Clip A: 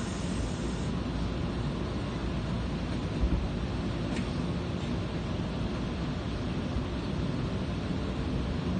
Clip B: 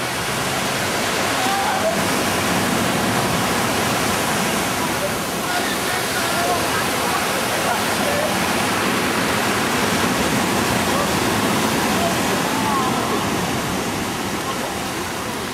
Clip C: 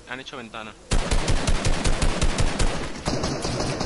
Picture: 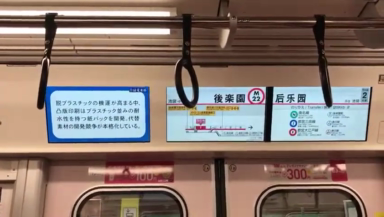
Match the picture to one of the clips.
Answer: A